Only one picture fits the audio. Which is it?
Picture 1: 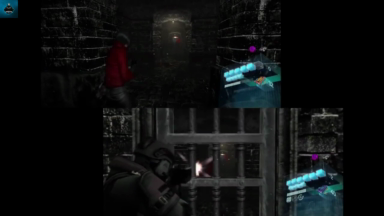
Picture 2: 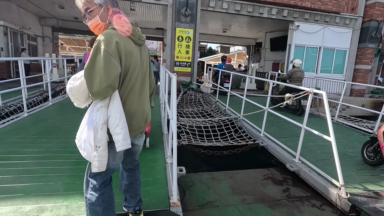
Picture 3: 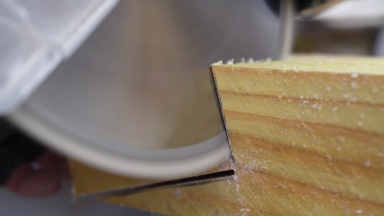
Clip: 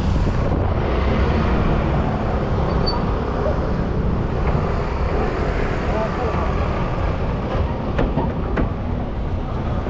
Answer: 2